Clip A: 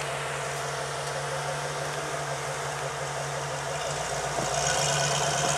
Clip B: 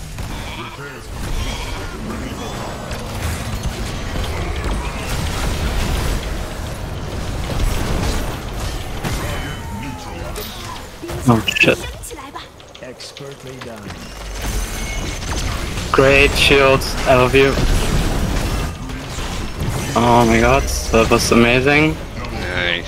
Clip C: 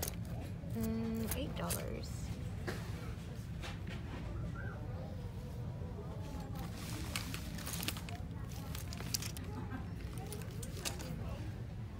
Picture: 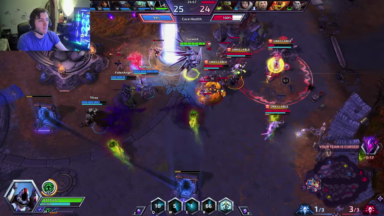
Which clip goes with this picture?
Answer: B